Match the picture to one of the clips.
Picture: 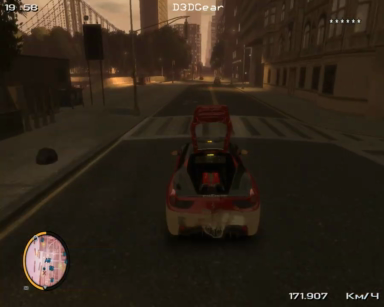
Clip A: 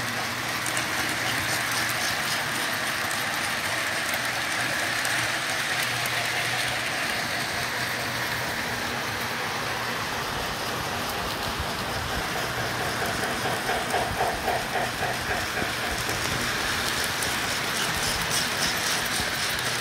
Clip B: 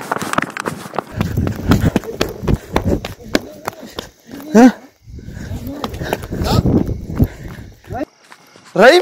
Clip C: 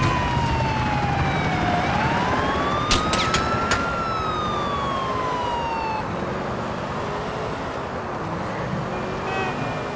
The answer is C